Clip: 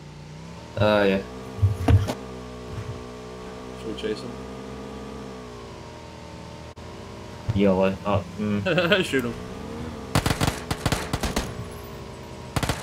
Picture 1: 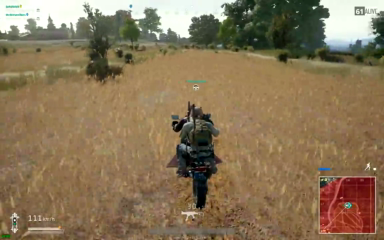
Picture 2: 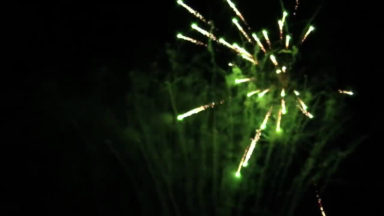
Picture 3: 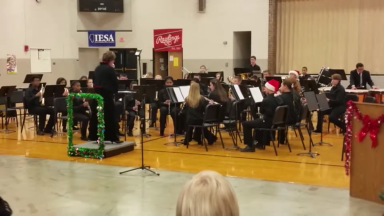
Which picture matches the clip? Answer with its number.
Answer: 1